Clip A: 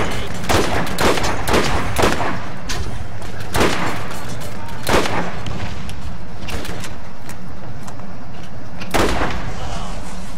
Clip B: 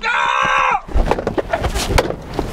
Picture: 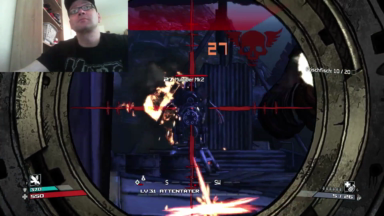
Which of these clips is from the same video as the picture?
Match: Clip A